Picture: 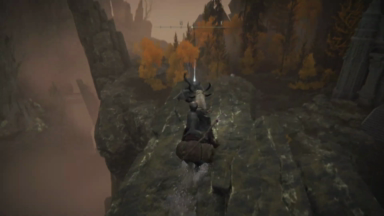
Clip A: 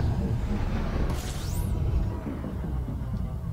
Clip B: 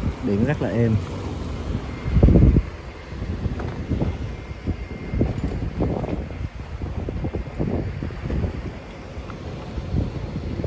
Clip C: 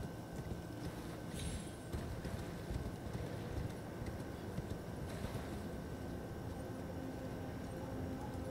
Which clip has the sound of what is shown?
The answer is C